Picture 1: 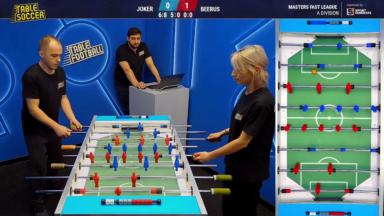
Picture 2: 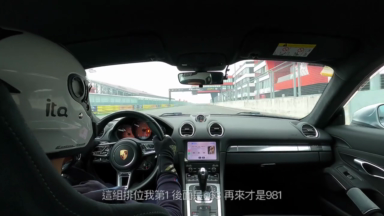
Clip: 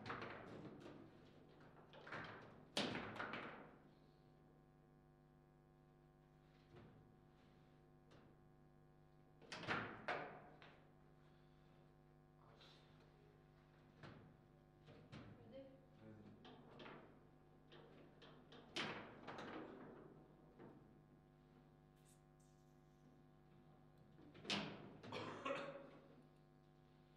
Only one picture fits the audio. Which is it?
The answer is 1